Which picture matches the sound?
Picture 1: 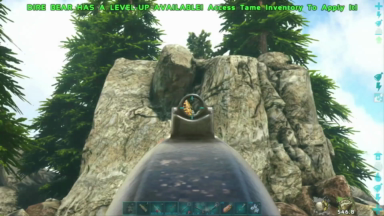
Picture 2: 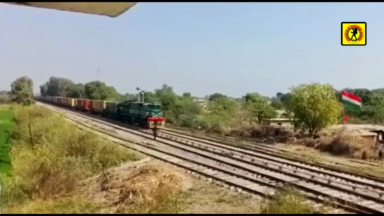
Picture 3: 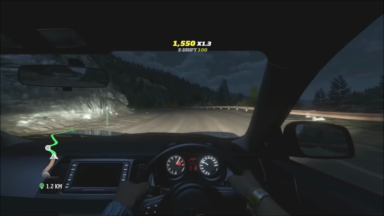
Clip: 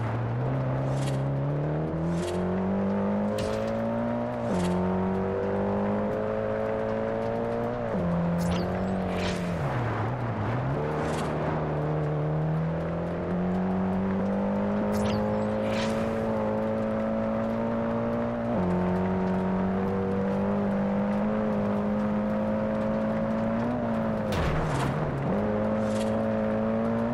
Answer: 3